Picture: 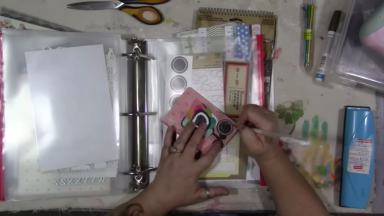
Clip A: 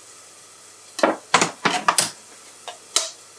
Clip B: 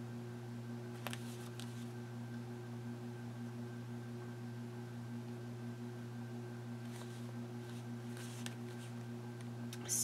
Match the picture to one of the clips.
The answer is B